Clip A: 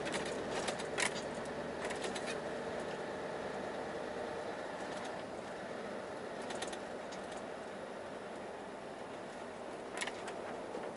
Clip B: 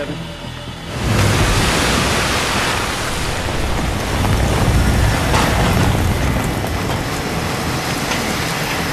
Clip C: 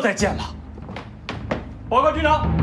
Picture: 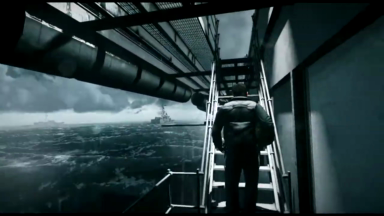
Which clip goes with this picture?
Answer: B